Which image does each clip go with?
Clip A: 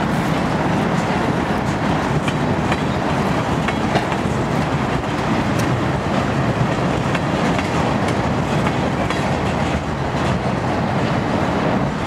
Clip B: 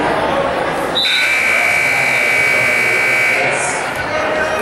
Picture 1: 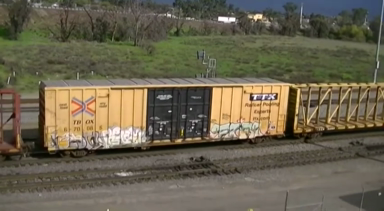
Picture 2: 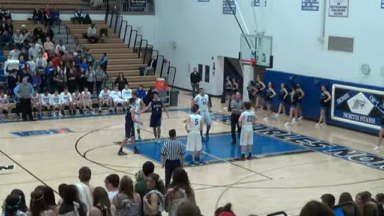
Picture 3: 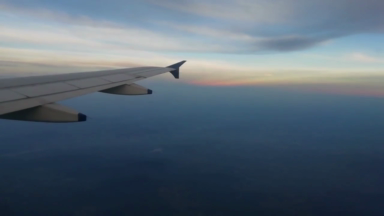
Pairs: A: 1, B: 2